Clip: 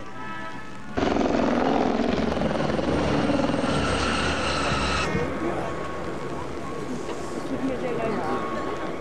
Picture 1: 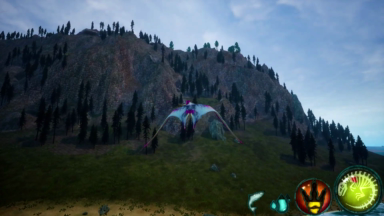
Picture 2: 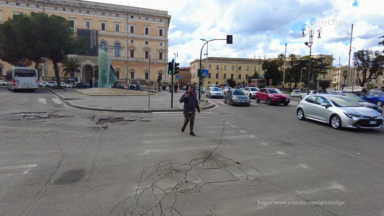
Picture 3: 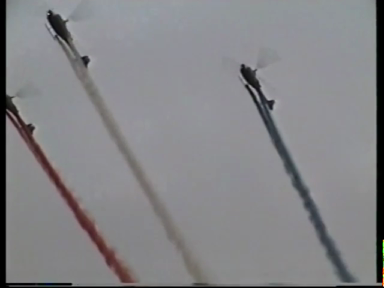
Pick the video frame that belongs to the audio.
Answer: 3